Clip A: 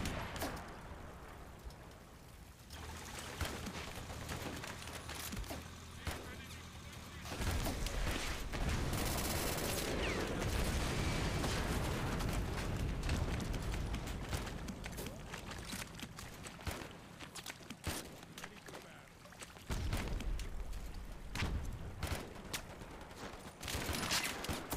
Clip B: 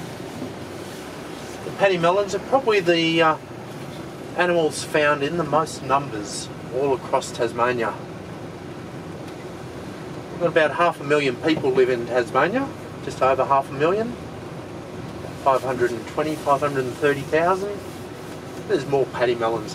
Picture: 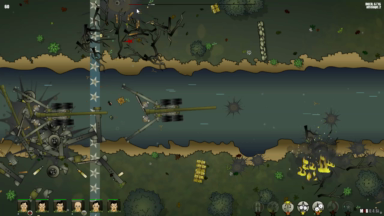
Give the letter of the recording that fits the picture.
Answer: A